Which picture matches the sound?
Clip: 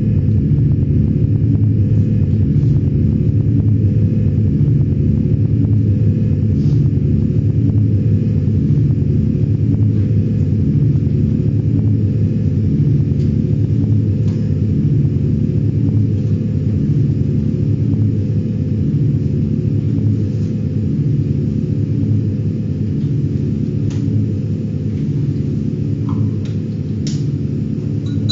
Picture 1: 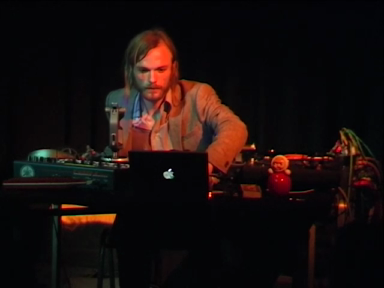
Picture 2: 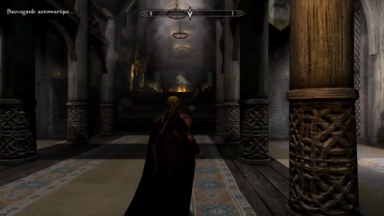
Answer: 1